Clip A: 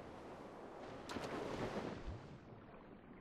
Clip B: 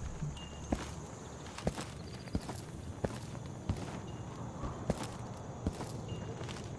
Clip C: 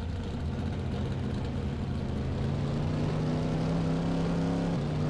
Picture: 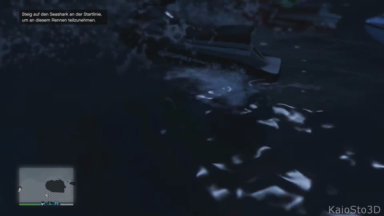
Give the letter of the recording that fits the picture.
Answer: A